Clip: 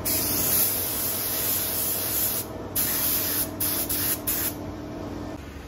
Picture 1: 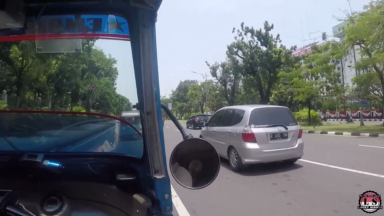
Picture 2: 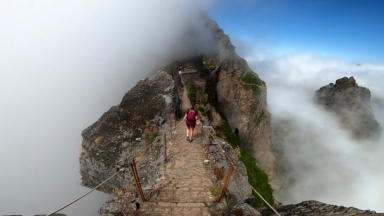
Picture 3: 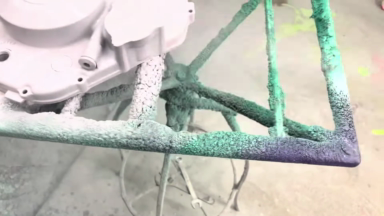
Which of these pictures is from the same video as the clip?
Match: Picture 3